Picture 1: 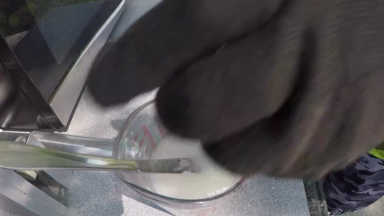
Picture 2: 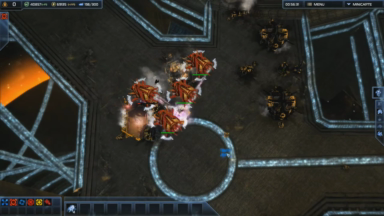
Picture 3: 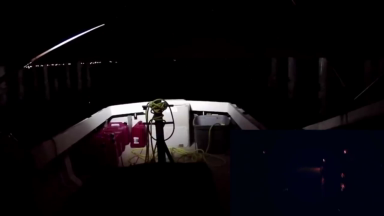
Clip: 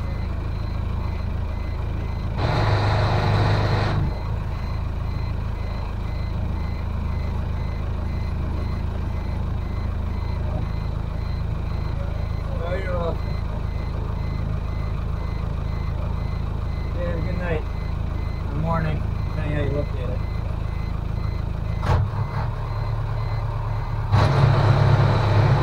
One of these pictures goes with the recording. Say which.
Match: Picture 3